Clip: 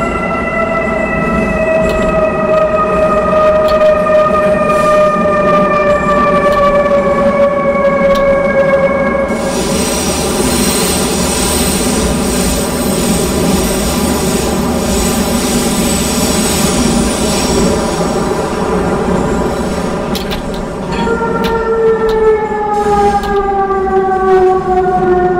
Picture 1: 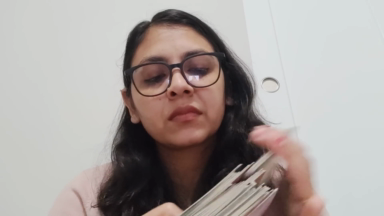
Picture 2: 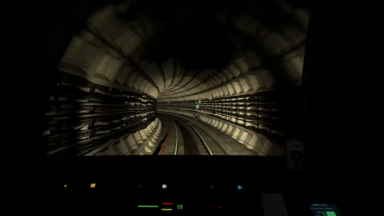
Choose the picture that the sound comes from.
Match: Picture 2